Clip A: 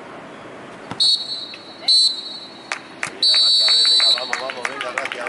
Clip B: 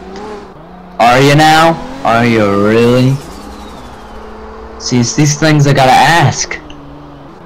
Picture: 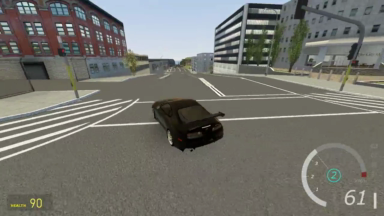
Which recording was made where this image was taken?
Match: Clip B